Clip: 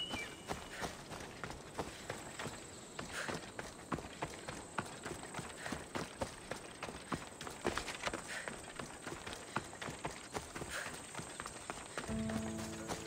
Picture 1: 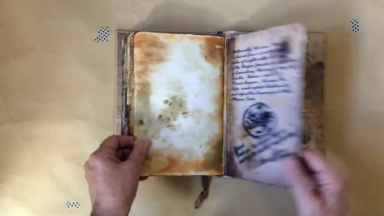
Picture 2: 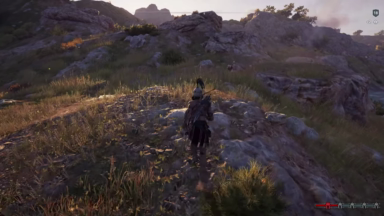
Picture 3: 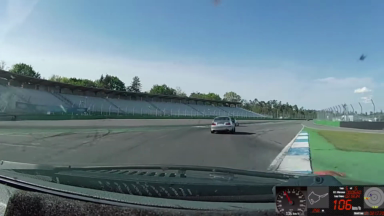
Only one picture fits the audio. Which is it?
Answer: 2